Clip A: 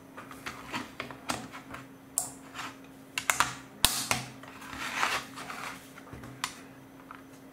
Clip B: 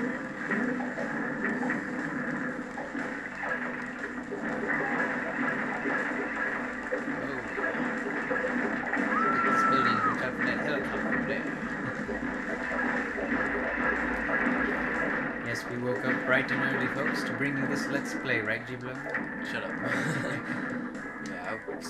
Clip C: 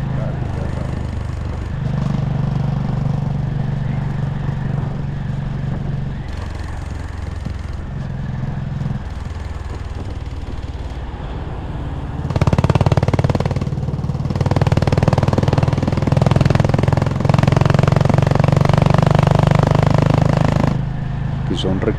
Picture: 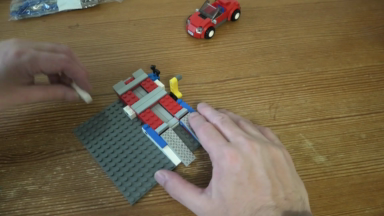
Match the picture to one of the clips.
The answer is A